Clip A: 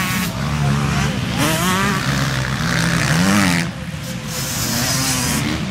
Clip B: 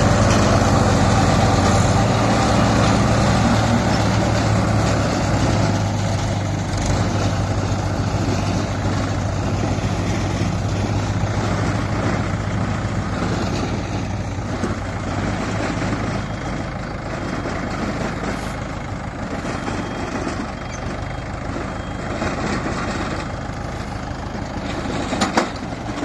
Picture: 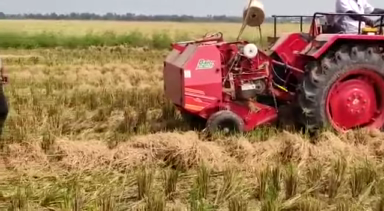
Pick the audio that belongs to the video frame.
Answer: B